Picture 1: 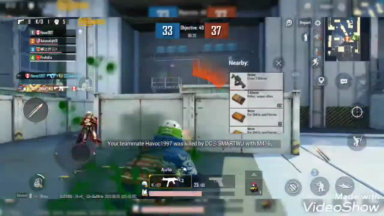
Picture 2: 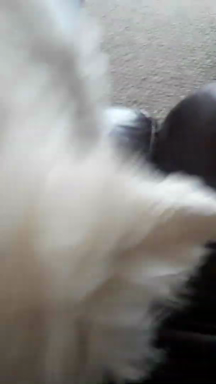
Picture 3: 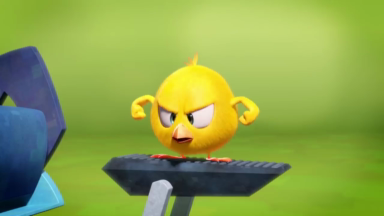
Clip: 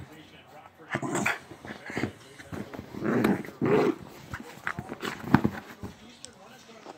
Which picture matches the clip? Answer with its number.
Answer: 2